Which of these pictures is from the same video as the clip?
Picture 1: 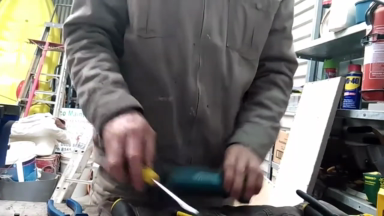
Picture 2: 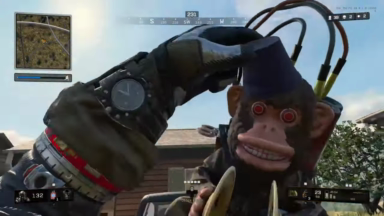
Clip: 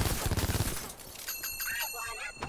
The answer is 2